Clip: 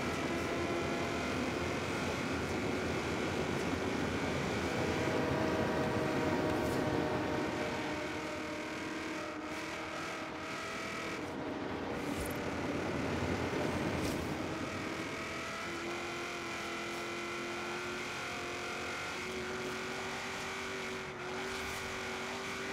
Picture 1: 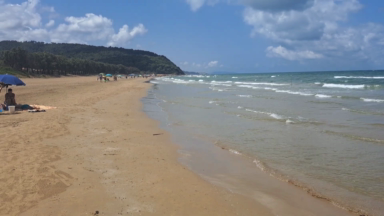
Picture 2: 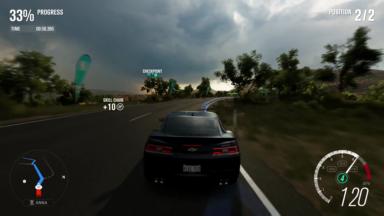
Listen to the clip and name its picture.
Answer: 2